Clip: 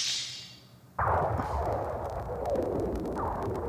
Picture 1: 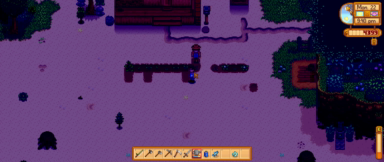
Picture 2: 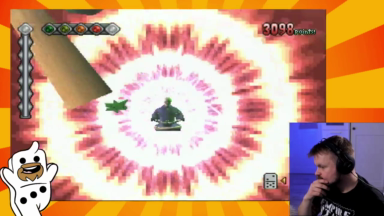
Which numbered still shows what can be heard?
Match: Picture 2